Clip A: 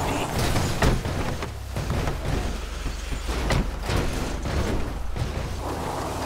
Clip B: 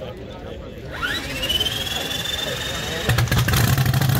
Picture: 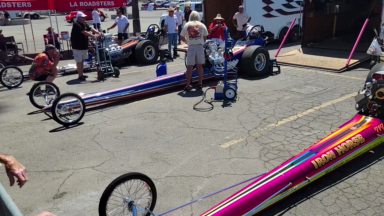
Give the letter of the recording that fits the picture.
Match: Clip B